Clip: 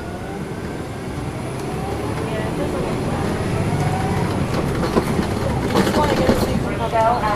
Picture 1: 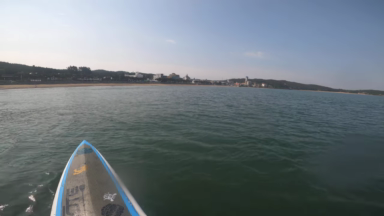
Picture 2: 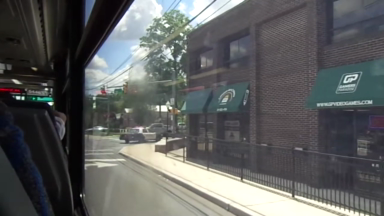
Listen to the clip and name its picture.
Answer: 2